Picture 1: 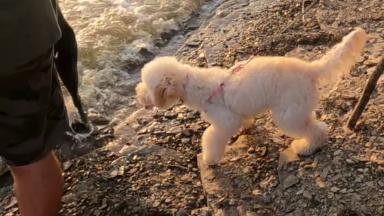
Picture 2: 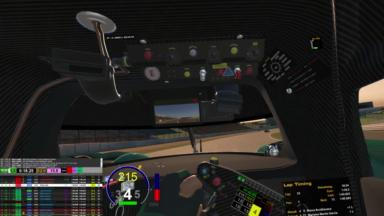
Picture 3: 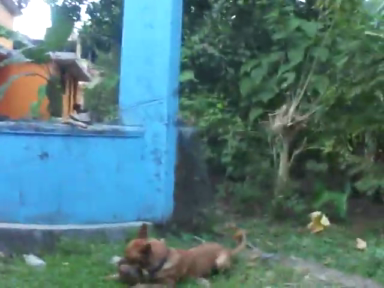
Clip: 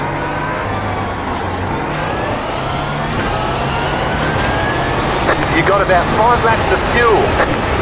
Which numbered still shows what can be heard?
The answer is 2